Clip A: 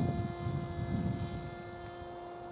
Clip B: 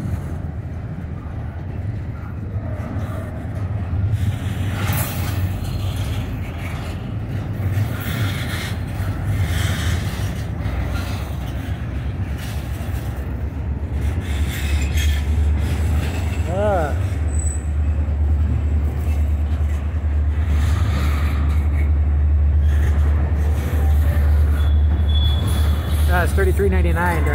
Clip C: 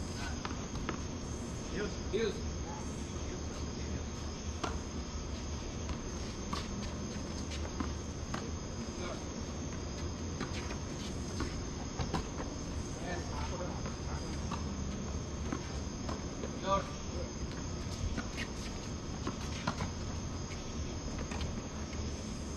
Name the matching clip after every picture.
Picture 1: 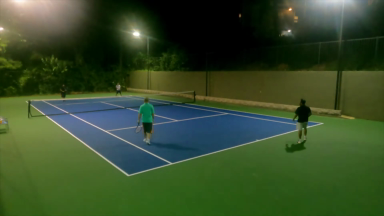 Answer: C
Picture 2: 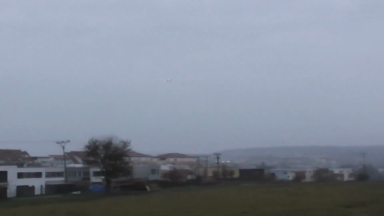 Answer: A